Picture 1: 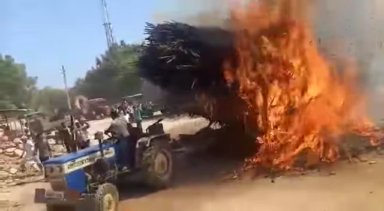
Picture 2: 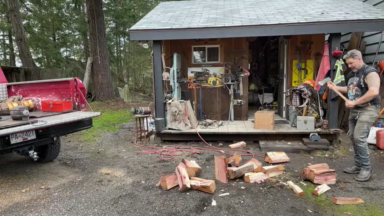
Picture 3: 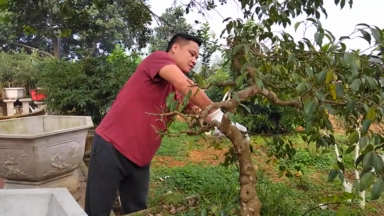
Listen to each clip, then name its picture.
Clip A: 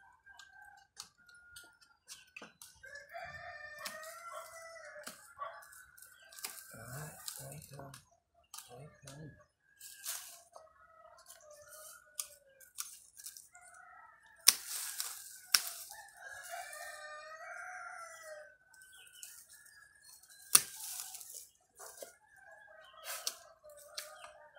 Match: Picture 3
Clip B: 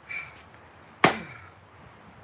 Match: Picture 2